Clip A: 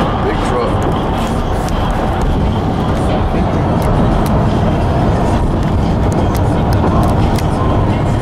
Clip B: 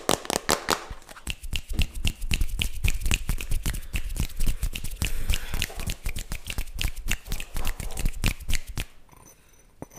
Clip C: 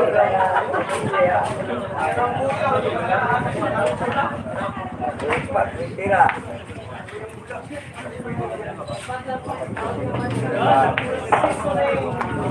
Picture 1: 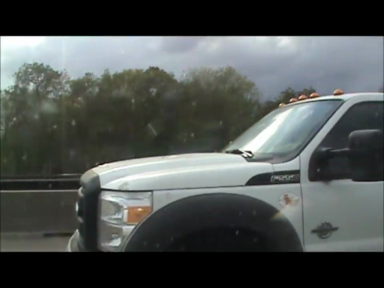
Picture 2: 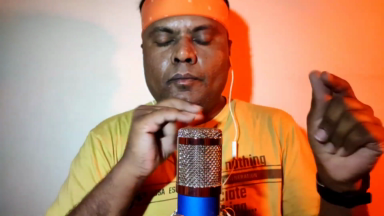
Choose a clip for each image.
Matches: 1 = A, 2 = B